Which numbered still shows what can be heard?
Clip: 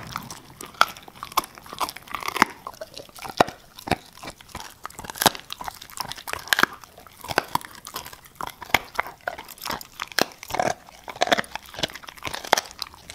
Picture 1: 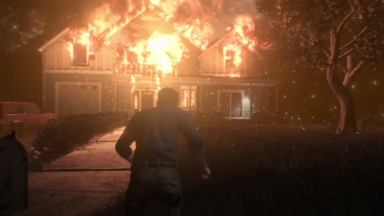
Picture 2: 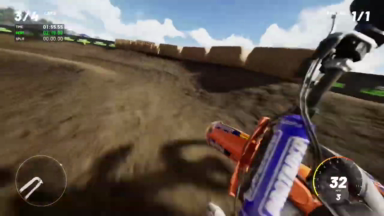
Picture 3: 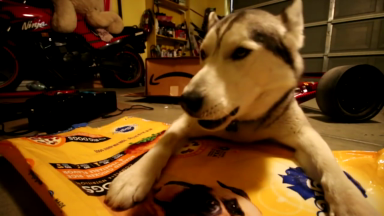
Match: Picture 3